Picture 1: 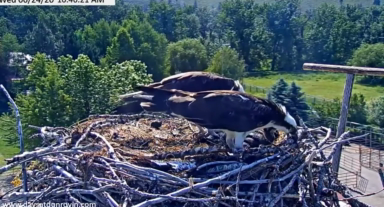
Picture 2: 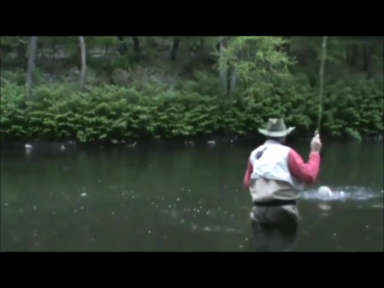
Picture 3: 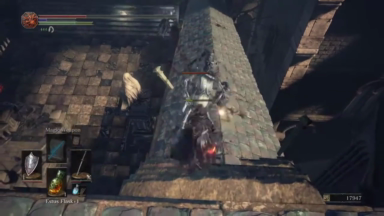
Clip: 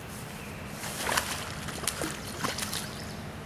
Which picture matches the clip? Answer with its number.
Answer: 2